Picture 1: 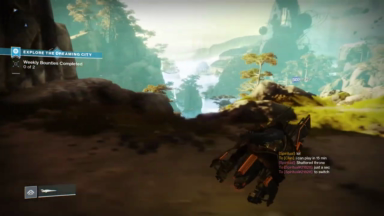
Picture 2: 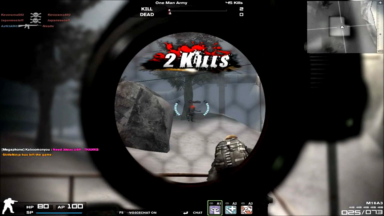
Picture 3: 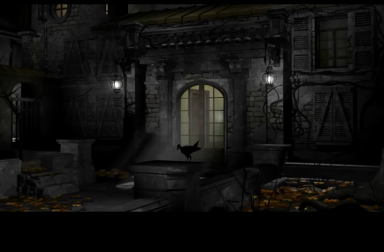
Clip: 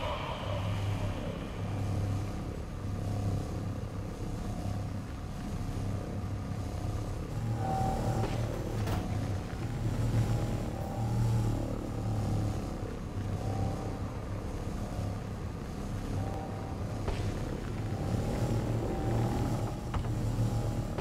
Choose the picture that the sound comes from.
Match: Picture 1